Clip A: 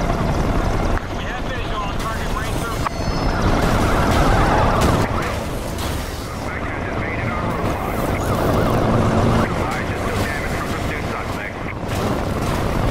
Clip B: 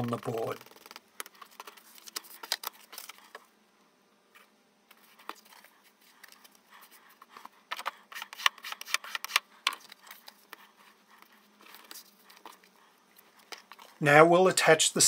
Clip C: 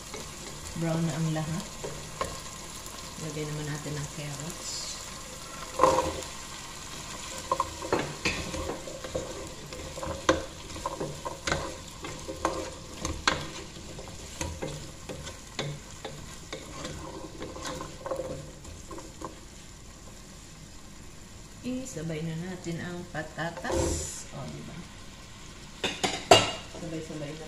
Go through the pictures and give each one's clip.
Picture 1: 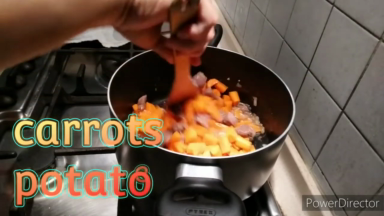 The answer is C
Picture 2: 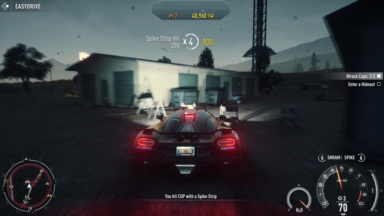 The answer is A